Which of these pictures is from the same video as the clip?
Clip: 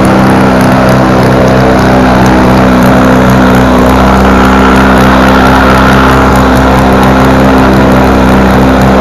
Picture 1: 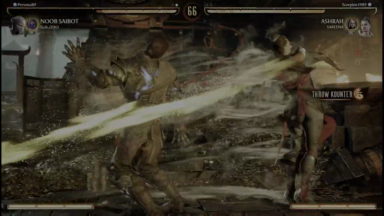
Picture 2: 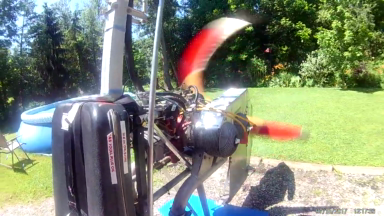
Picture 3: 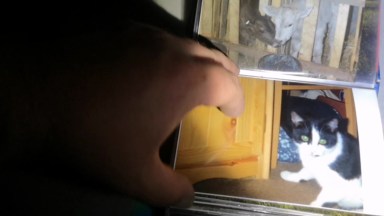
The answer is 2